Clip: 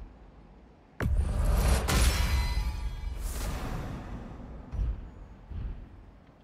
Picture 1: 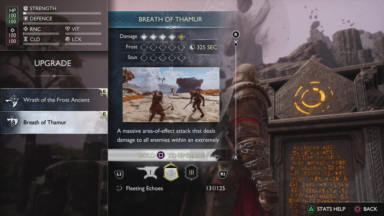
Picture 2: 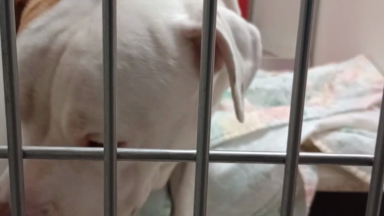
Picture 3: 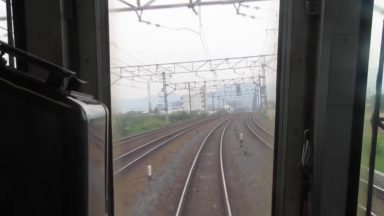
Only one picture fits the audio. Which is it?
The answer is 1